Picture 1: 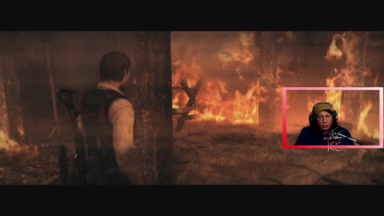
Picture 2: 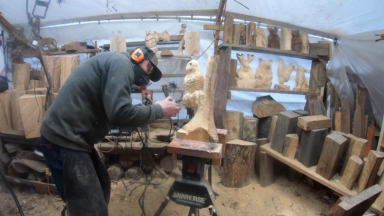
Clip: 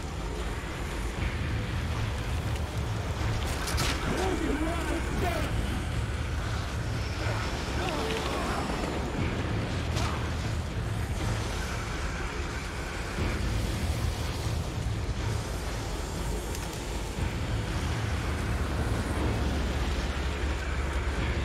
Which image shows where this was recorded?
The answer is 1